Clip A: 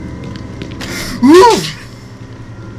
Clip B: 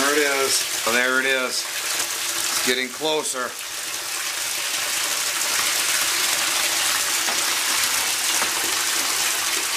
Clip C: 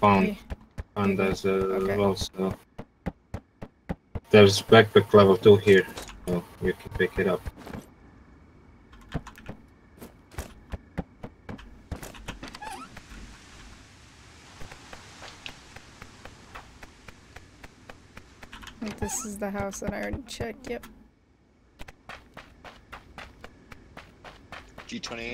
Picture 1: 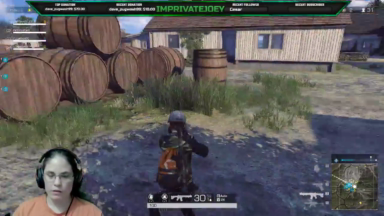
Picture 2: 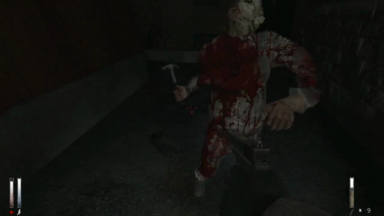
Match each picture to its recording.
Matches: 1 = C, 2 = A